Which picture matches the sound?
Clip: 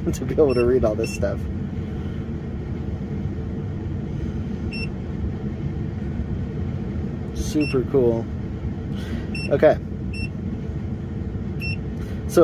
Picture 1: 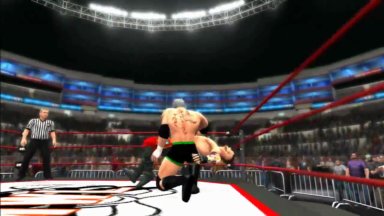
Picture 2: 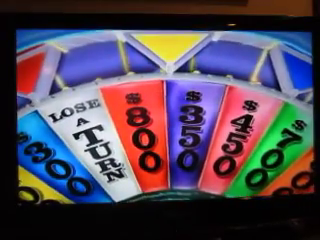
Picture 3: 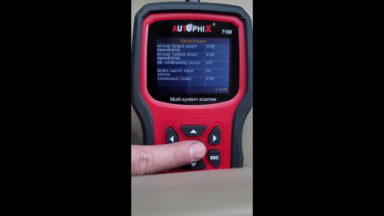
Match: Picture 3